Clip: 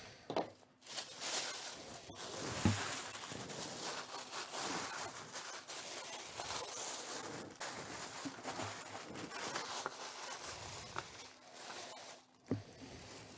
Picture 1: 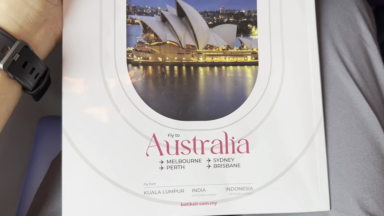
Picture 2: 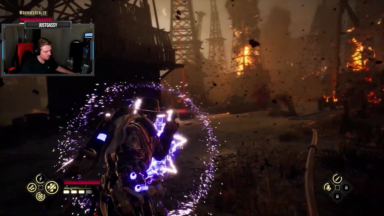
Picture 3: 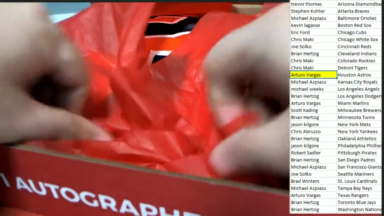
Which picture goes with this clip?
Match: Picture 3